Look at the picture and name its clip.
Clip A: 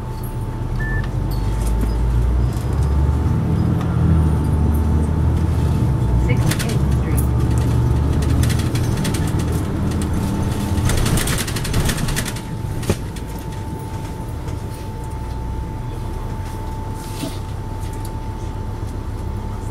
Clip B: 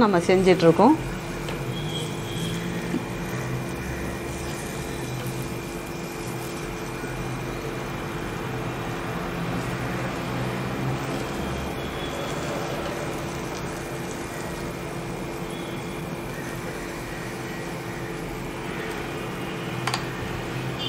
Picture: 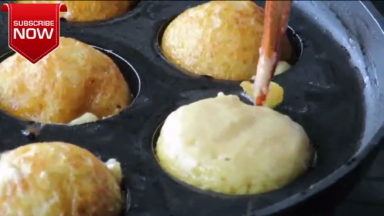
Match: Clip B